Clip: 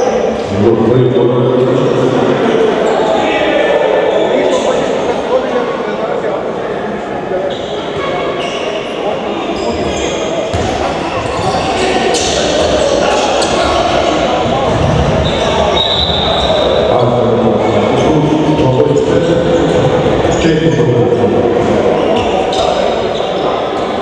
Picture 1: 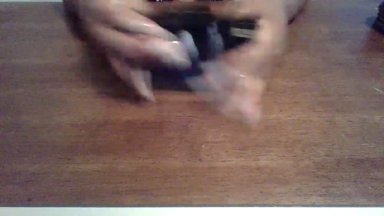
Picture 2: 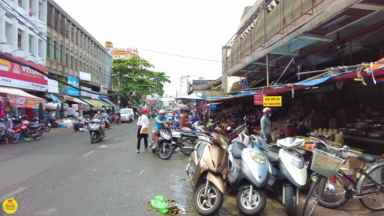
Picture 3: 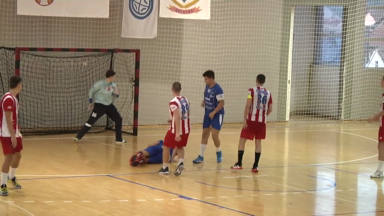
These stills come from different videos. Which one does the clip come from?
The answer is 3